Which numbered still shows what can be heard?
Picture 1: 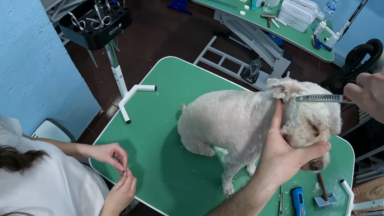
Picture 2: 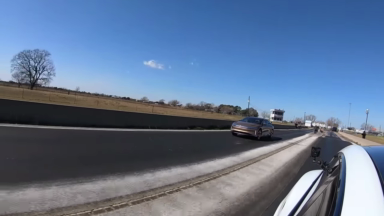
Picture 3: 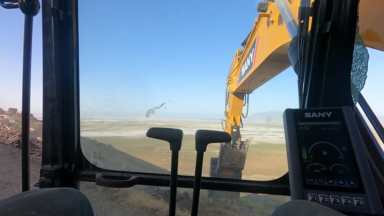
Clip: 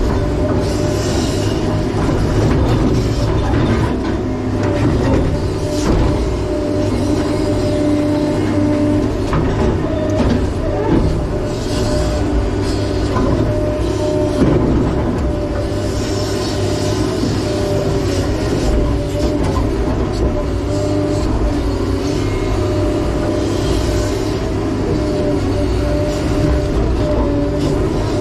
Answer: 3